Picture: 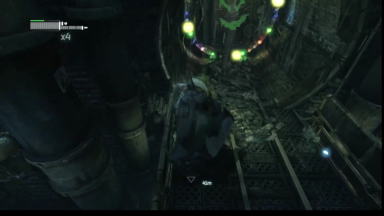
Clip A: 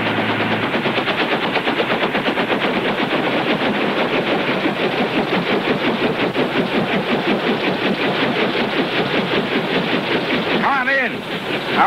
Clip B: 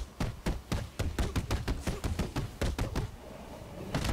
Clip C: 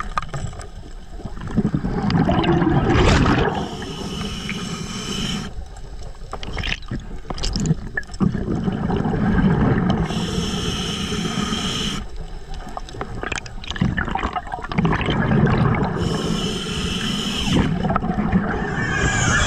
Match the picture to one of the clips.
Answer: B